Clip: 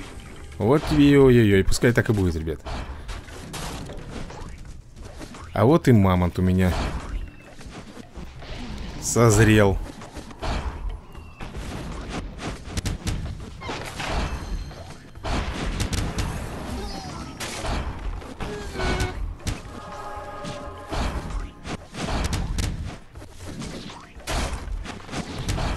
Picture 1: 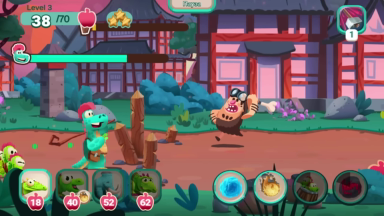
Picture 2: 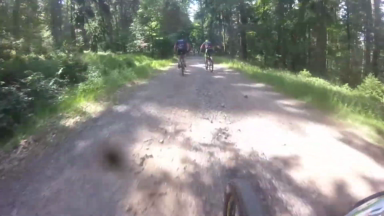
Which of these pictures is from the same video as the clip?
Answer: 1